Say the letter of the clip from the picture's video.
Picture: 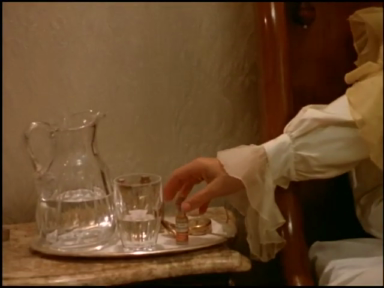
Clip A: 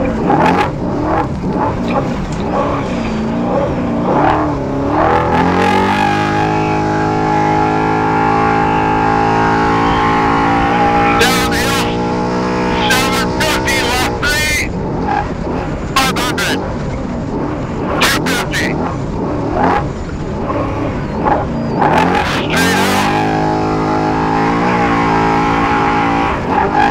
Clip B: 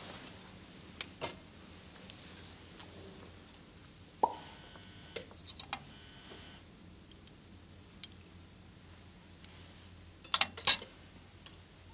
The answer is B